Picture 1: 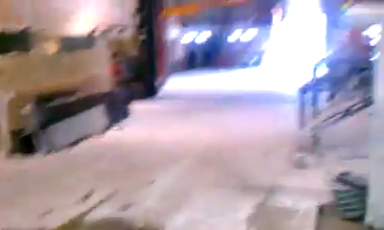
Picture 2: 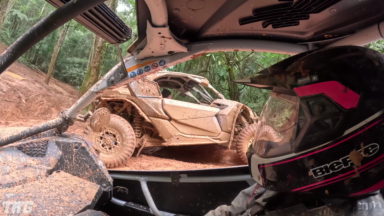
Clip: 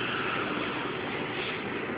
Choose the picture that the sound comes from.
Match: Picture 1